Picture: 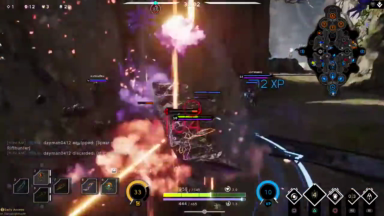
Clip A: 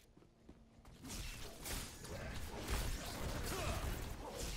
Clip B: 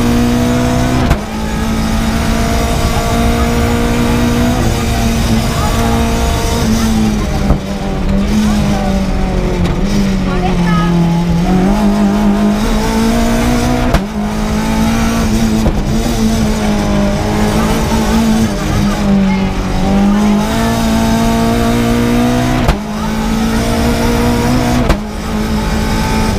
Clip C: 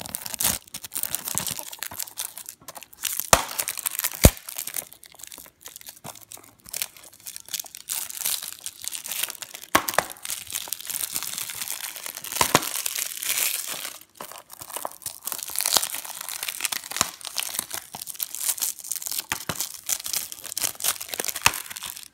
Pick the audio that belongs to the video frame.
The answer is A